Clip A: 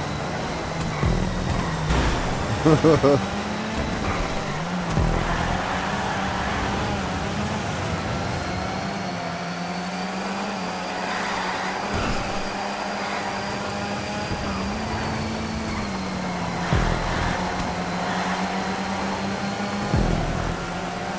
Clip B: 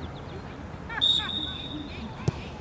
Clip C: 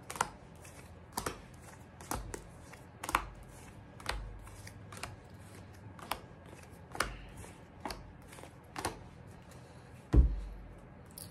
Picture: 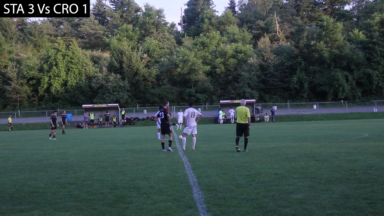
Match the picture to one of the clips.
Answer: B